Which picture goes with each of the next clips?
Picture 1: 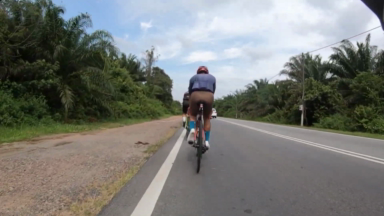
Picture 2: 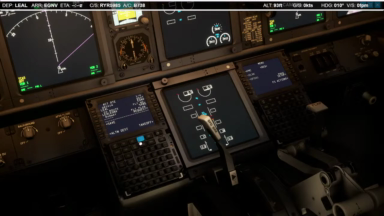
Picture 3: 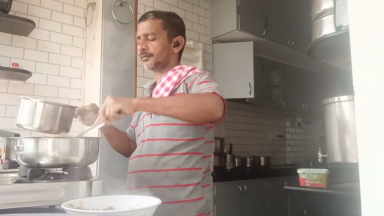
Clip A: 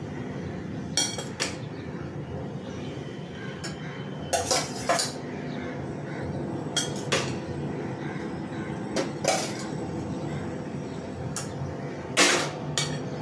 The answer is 3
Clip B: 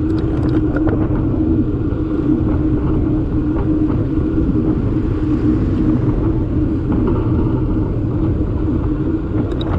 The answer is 1